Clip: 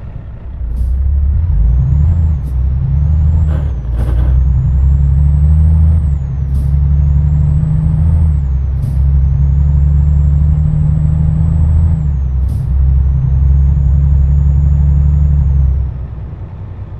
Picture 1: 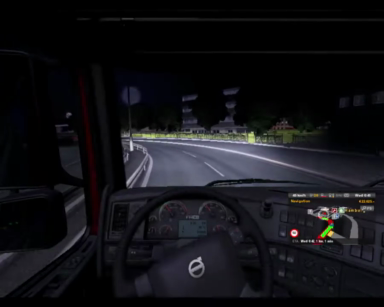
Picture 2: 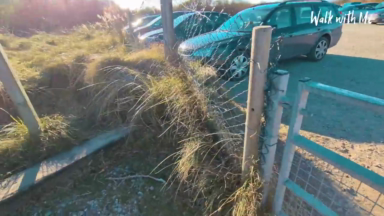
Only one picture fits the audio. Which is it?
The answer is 1